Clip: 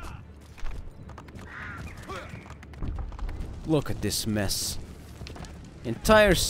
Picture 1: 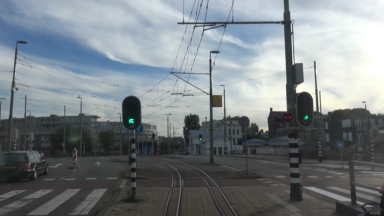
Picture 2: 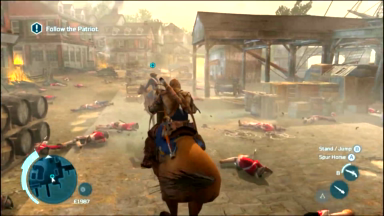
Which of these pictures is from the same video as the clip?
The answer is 2